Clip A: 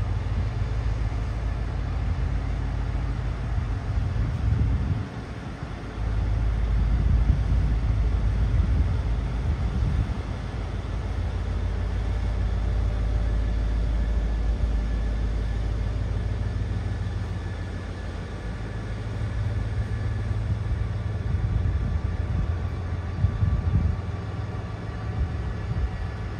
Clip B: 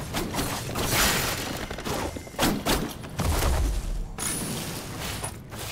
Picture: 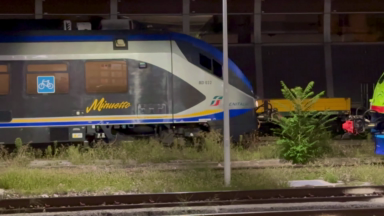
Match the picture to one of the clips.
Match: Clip A